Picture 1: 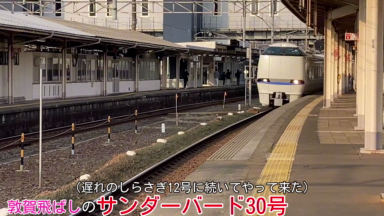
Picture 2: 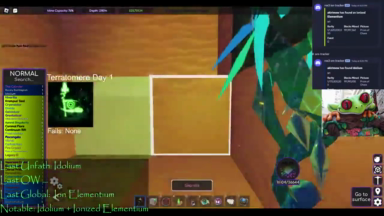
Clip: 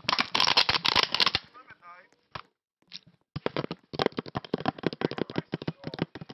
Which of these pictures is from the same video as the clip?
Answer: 2